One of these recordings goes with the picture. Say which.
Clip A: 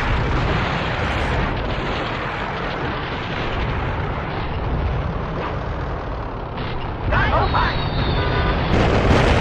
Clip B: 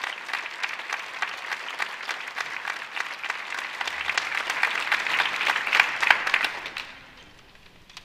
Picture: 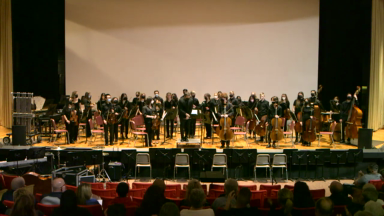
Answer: B